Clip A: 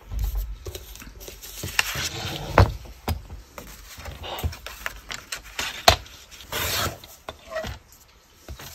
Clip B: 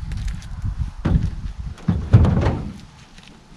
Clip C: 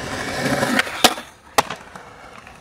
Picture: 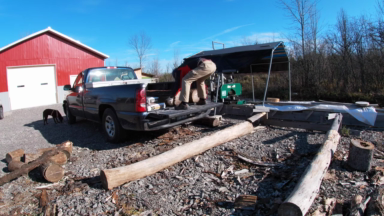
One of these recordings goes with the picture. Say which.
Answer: B